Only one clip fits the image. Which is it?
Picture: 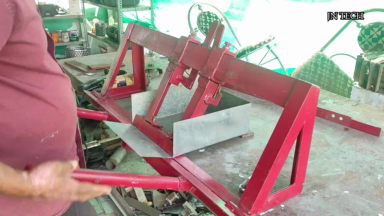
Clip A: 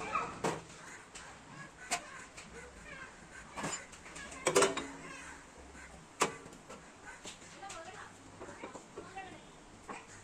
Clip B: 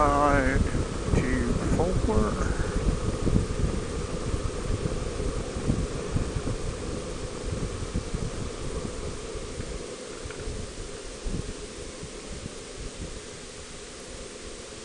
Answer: A